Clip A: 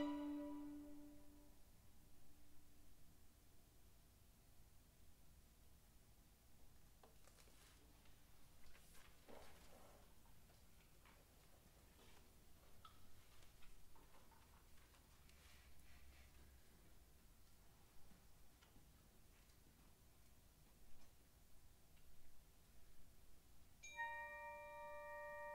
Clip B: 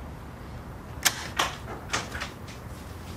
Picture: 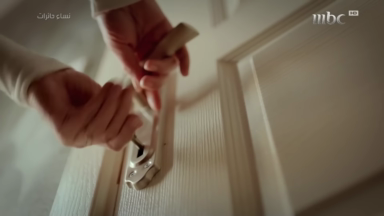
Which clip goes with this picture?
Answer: B